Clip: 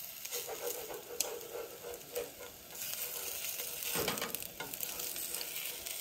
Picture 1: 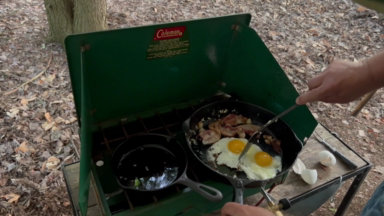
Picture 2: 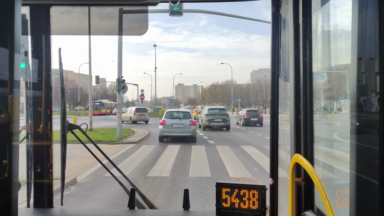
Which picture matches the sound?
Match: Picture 1